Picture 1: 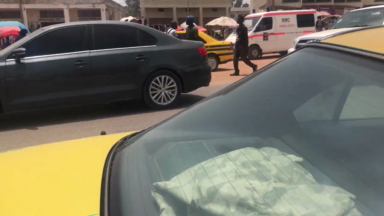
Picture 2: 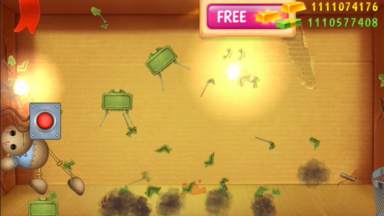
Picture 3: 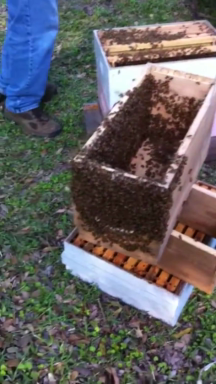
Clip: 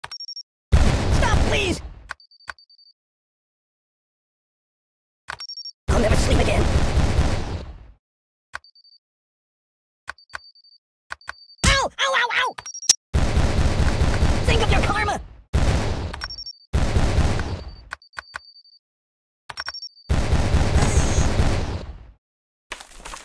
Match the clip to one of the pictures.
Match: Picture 2